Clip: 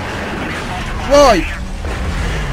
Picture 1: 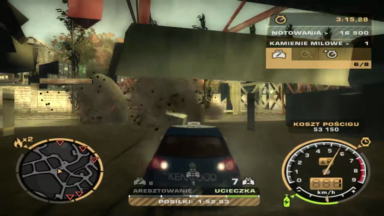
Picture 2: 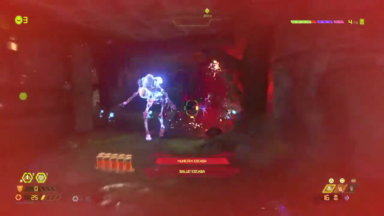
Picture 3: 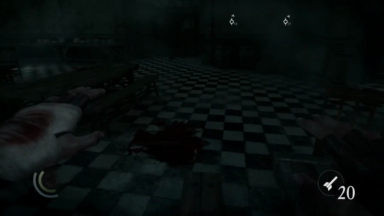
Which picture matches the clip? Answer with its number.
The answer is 1